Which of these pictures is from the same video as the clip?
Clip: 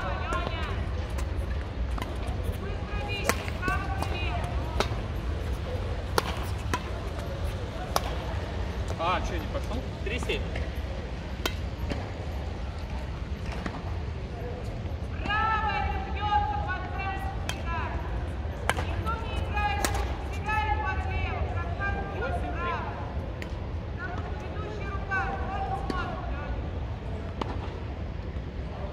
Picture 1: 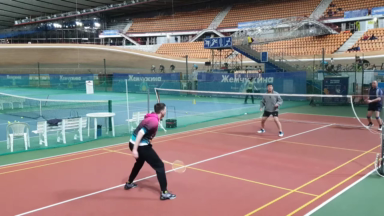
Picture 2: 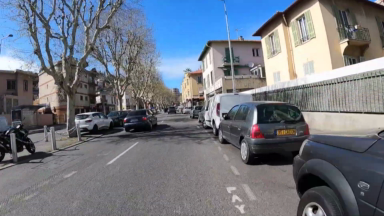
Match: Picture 1